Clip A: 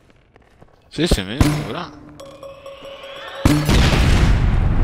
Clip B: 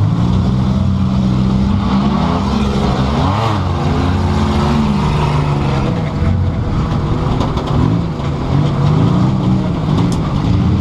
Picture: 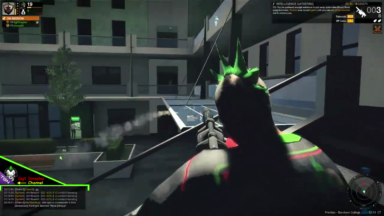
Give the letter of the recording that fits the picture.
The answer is A